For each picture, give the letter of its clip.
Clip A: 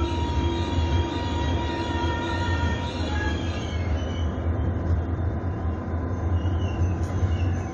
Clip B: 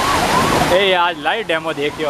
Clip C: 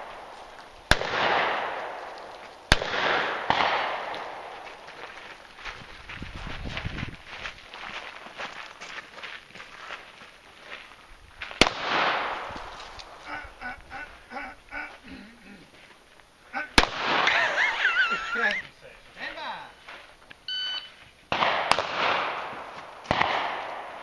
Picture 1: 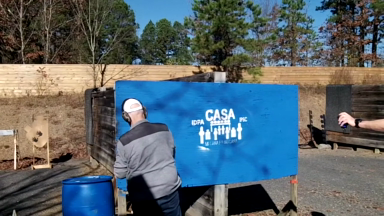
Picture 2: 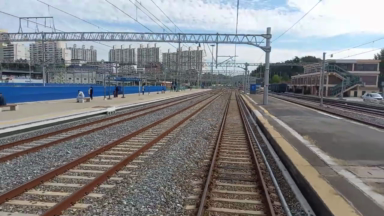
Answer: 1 C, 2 A